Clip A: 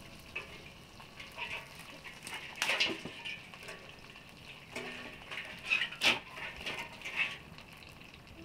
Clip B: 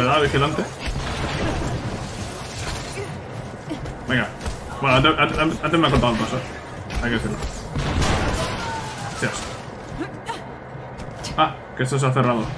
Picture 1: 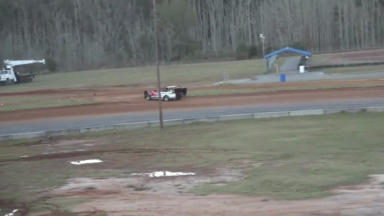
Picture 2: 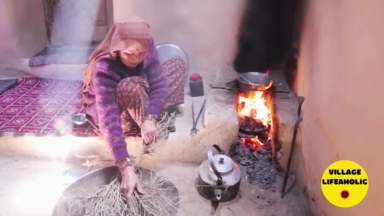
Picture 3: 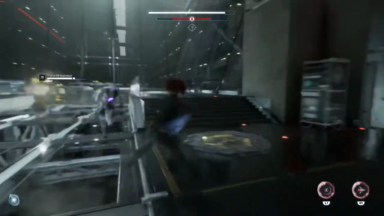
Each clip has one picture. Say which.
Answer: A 2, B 3